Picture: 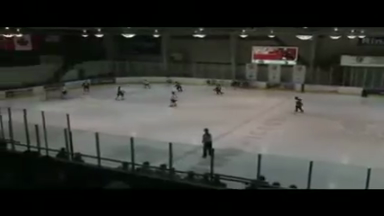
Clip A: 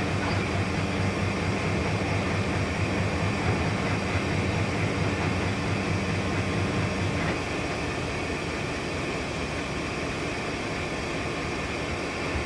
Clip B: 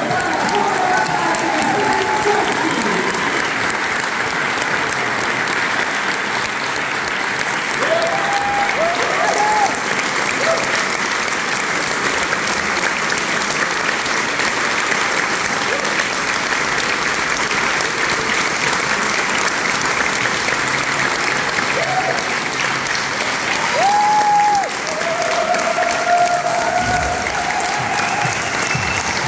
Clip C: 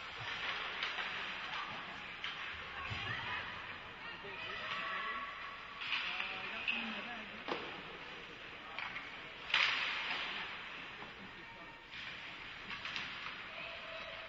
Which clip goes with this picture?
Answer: C